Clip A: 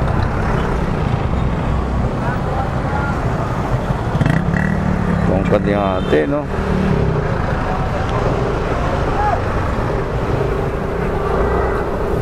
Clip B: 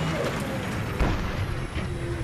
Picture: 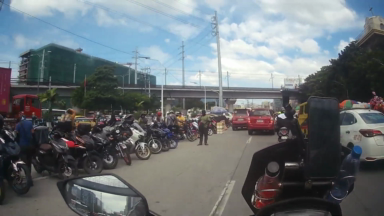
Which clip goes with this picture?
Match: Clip A